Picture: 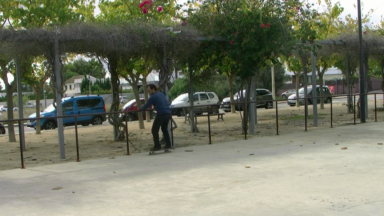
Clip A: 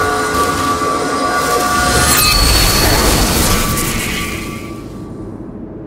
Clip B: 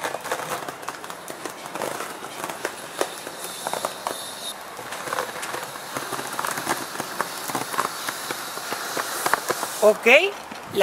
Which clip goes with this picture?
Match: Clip B